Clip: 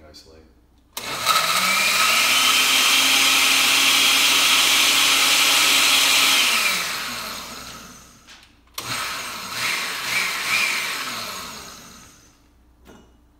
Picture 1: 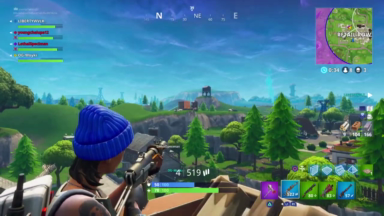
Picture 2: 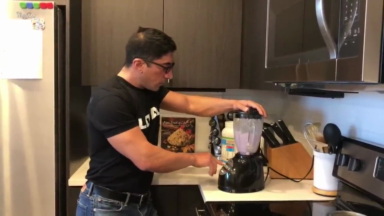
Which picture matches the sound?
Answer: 2